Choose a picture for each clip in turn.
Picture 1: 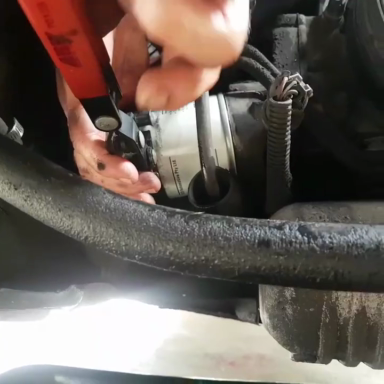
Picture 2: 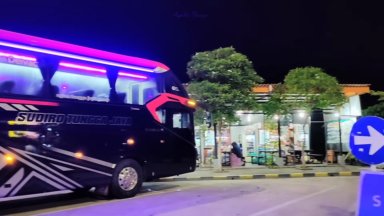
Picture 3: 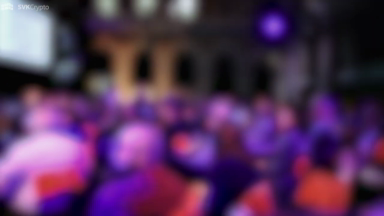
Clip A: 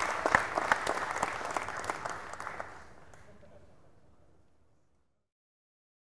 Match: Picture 3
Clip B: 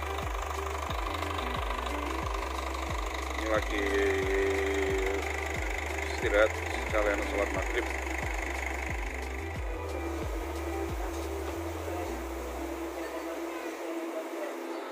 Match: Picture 2